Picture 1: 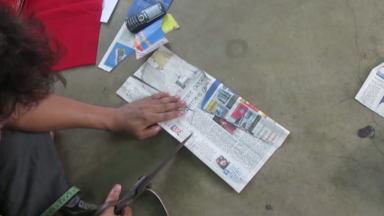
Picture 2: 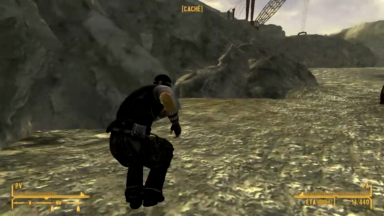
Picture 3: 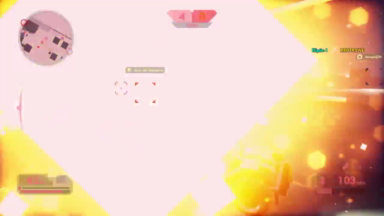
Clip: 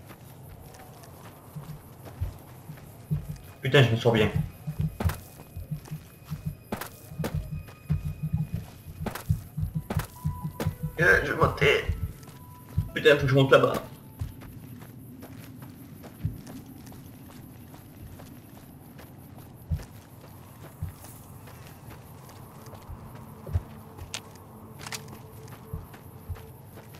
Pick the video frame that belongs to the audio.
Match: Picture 2